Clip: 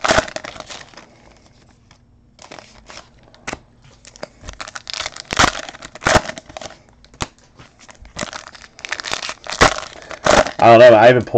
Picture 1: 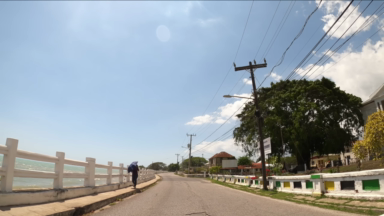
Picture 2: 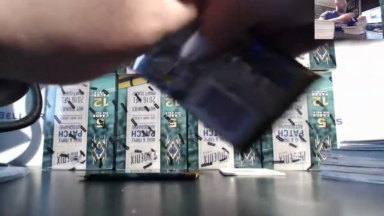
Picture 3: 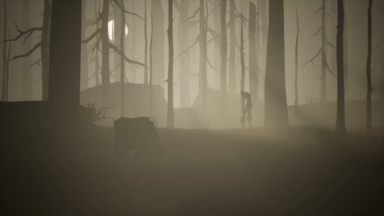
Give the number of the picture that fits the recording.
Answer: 2